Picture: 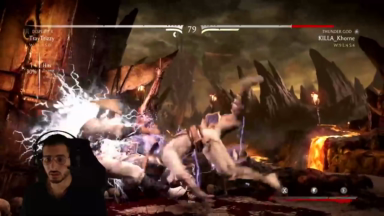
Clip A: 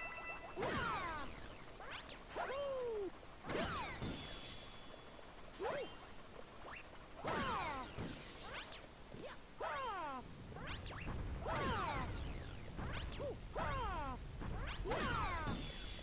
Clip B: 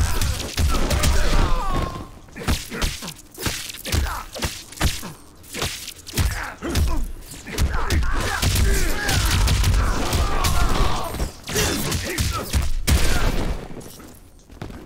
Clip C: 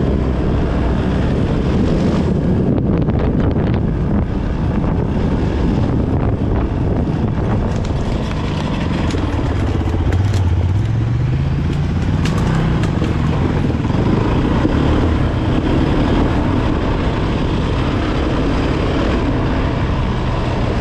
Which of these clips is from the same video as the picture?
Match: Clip B